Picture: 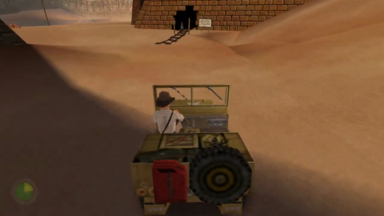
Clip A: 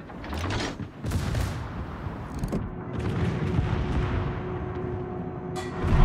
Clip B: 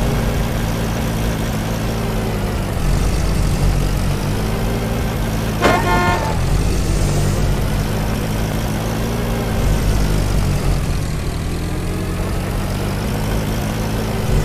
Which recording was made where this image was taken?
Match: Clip B